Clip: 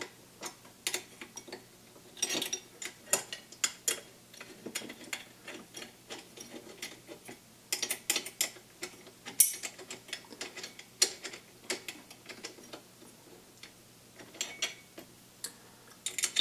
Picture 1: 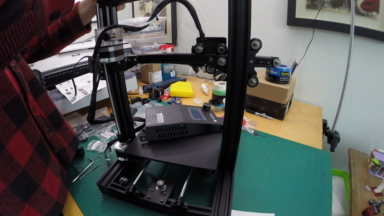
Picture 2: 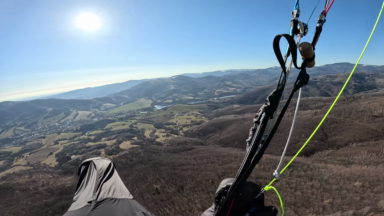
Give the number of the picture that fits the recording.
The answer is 1